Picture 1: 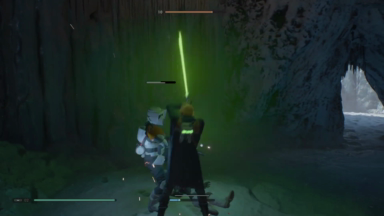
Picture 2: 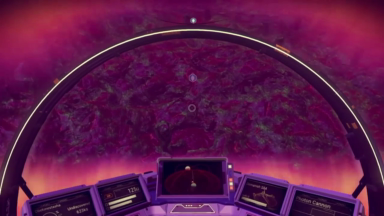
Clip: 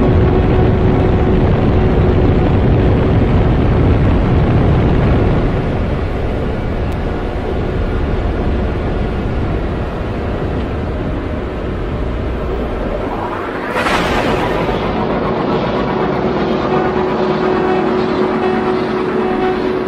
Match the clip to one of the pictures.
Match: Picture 2